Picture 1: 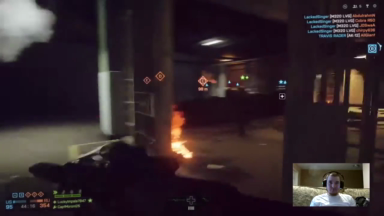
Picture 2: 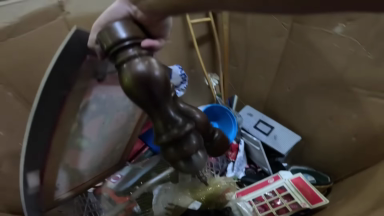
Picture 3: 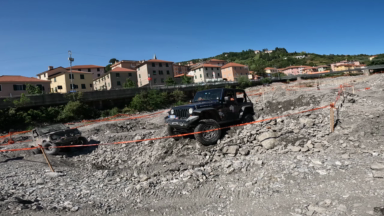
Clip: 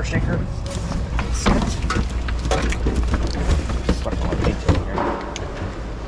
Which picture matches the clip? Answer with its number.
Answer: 2